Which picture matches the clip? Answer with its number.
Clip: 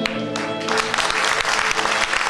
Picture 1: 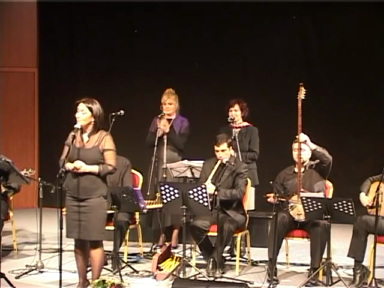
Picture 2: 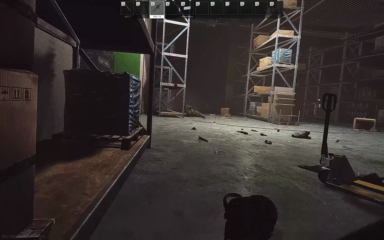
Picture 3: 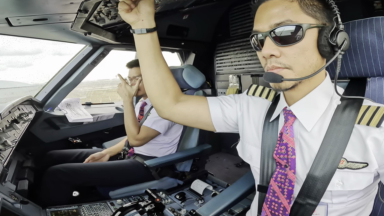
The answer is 1